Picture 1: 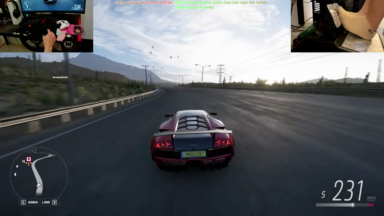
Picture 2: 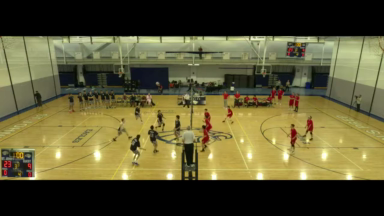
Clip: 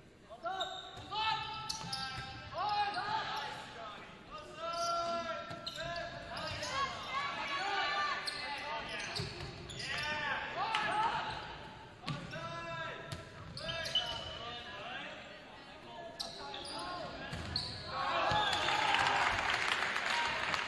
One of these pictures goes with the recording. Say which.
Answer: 2